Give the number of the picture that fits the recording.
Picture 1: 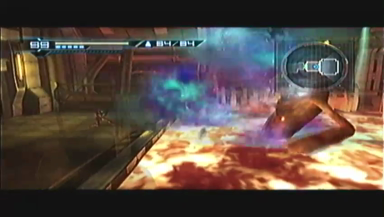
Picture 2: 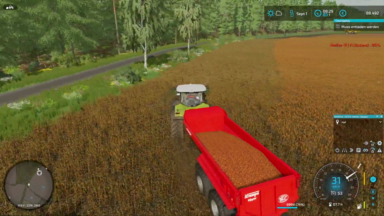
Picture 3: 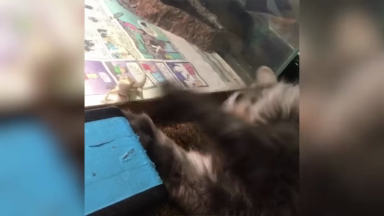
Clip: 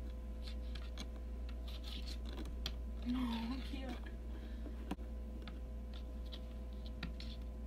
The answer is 3